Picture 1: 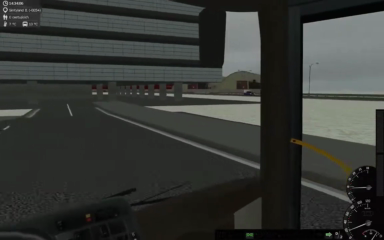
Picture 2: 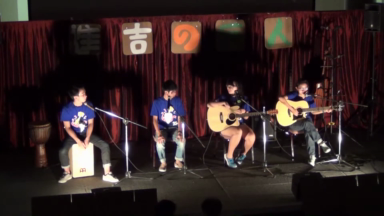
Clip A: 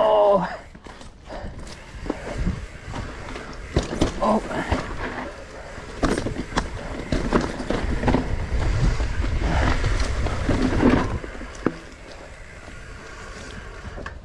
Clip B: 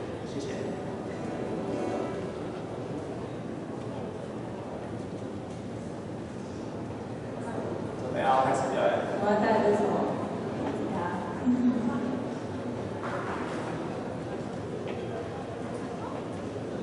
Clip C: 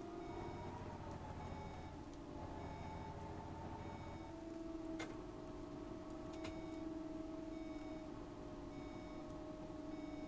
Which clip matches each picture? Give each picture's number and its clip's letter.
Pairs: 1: C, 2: B